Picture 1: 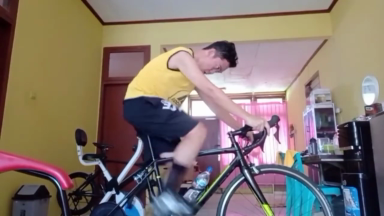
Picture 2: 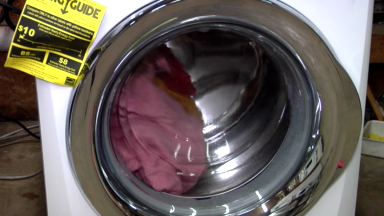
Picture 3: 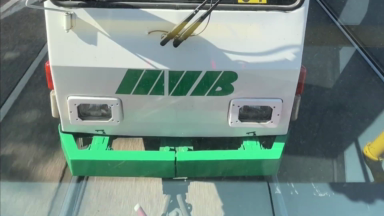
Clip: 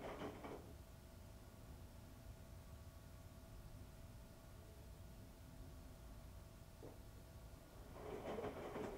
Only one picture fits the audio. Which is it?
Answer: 2